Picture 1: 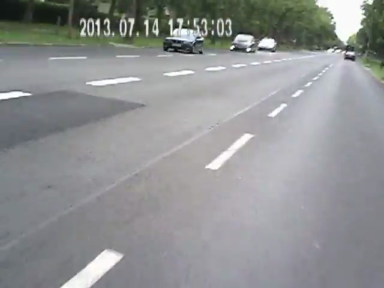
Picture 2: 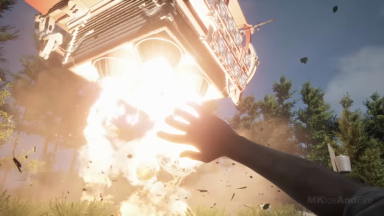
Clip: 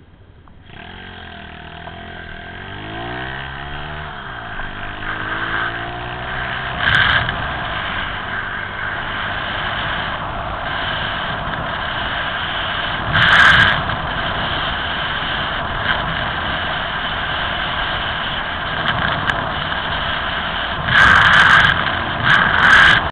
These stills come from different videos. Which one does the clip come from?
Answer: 1